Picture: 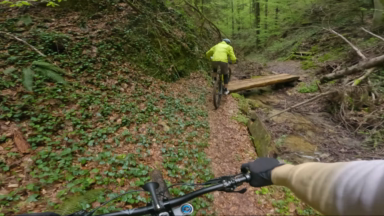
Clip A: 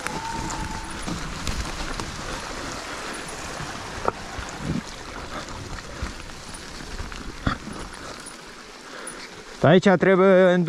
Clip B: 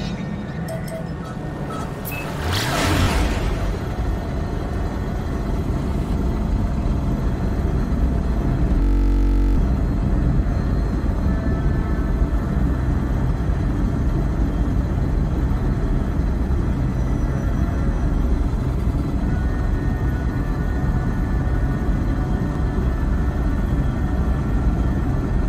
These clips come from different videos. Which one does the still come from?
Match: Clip A